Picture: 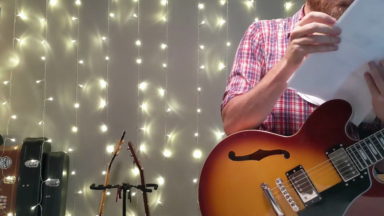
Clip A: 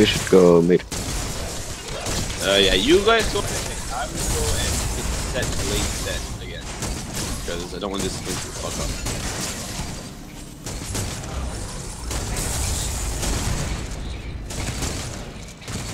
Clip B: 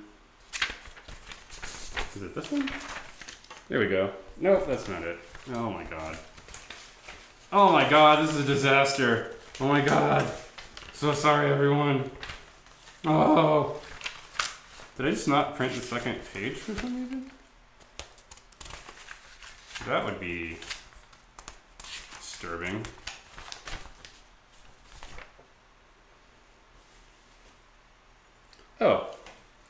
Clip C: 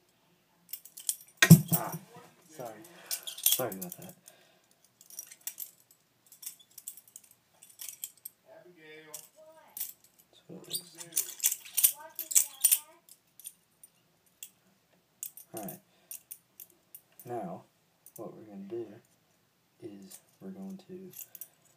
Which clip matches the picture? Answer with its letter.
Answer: B